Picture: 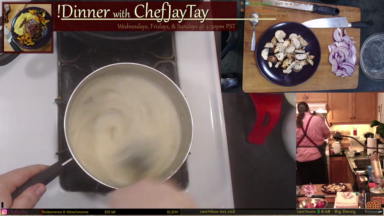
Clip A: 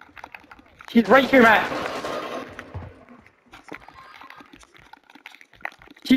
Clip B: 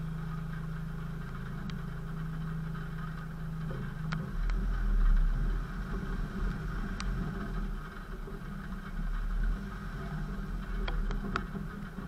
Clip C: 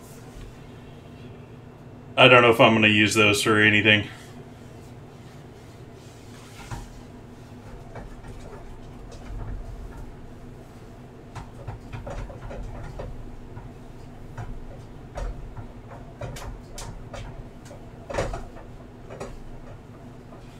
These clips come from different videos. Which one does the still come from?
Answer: C